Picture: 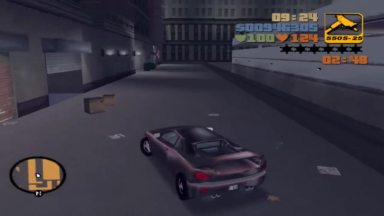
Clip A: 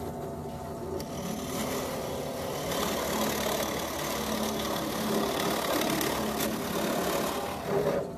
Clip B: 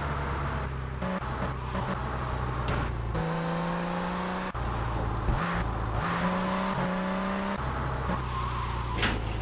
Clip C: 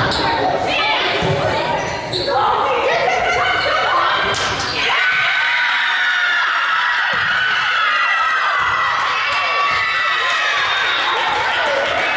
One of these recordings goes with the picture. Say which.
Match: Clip B